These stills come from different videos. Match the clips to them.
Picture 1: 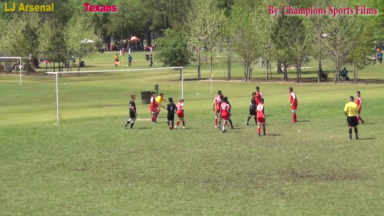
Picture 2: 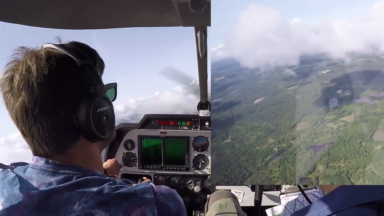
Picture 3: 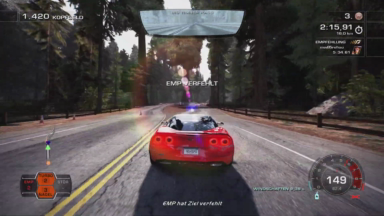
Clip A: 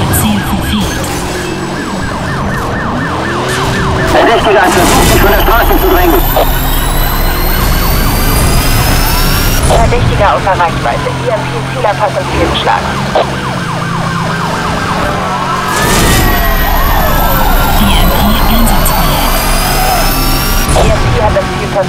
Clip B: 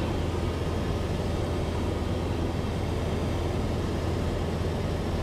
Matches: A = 3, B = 2